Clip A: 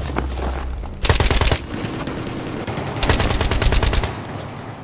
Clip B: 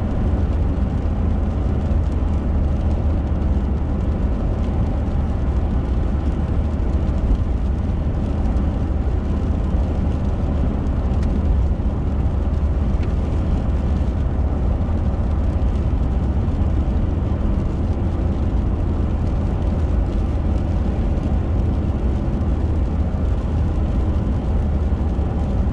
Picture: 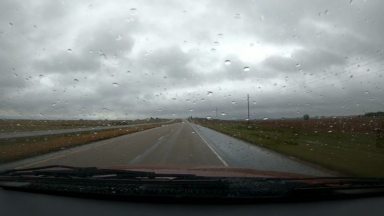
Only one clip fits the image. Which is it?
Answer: B